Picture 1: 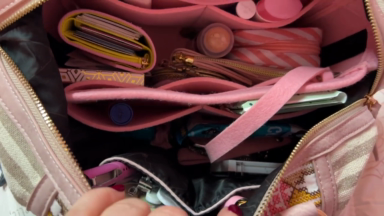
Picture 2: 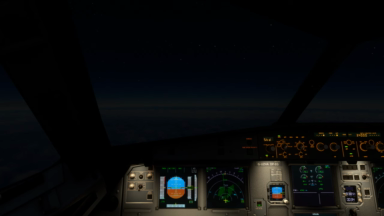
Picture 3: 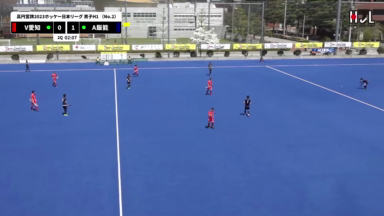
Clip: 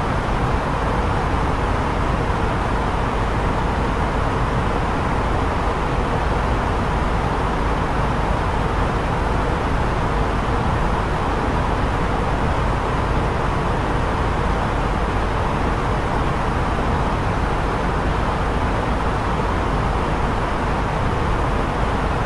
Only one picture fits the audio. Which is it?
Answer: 2